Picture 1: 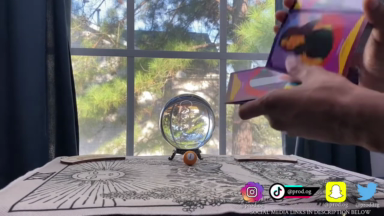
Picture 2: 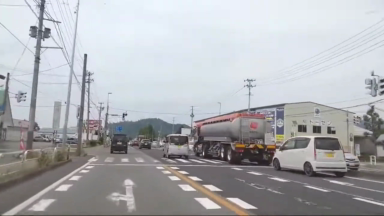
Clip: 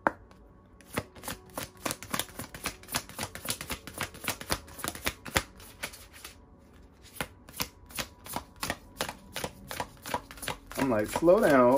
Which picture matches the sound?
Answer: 1